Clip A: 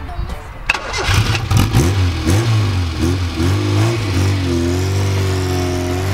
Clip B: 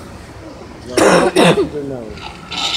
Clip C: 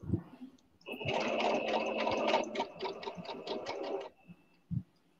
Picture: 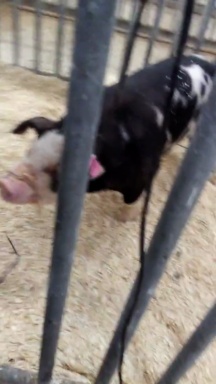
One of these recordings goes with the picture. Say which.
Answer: B